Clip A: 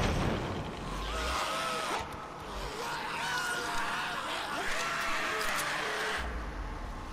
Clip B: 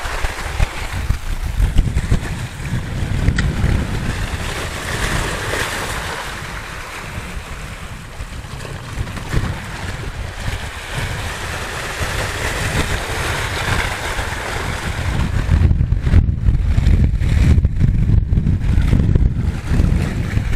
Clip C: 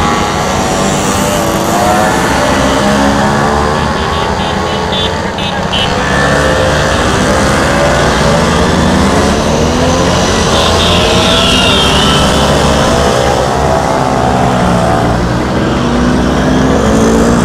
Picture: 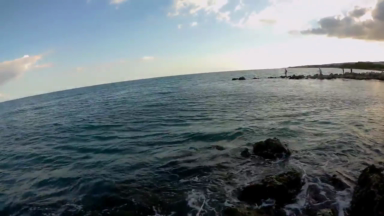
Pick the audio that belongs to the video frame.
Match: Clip B